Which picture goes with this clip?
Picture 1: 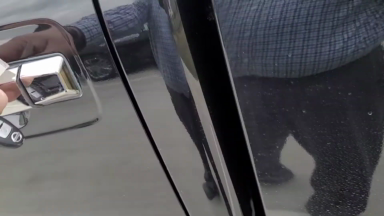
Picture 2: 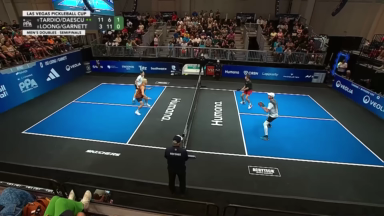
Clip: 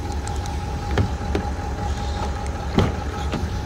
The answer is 1